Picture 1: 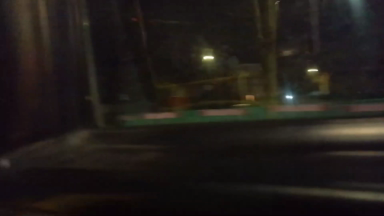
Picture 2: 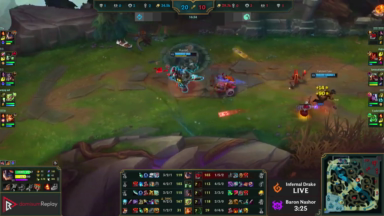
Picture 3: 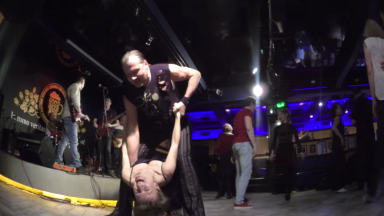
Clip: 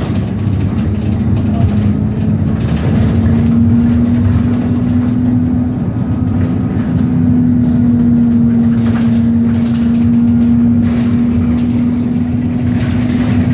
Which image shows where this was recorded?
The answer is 1